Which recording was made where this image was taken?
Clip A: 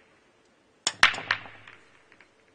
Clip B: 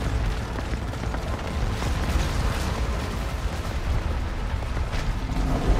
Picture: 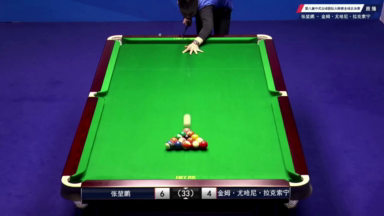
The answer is A